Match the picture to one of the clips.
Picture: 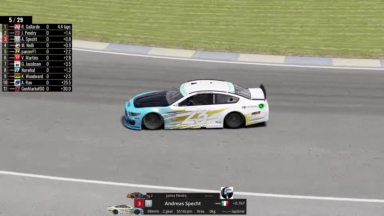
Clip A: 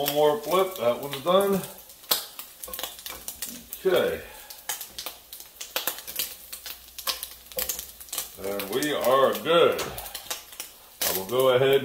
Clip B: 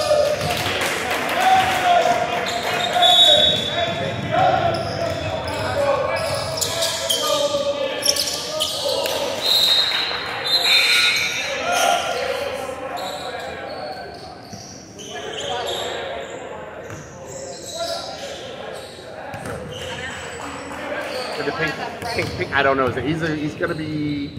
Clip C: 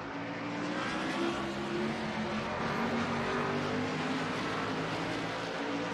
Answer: C